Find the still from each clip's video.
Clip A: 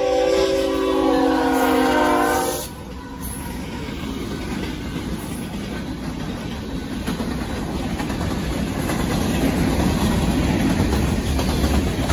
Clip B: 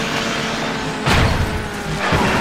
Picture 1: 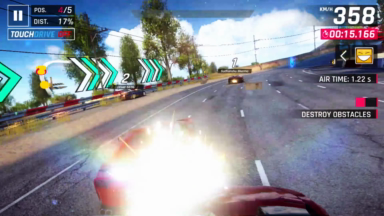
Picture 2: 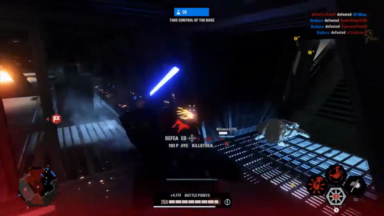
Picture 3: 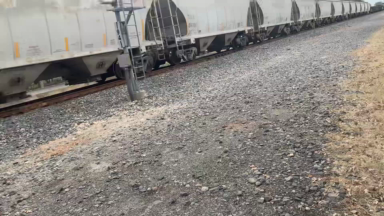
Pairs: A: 3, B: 1